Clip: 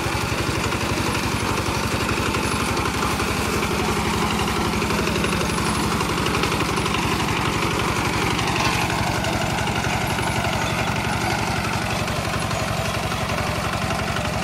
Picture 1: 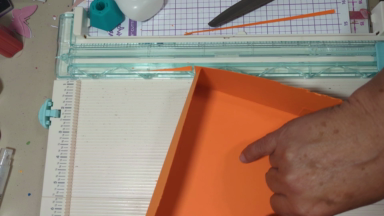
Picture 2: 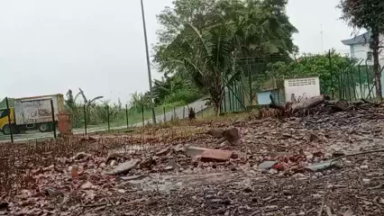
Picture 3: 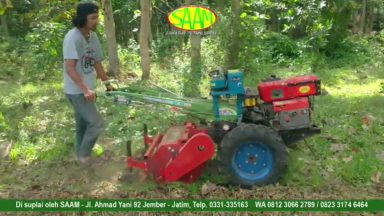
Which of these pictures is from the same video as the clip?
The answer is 3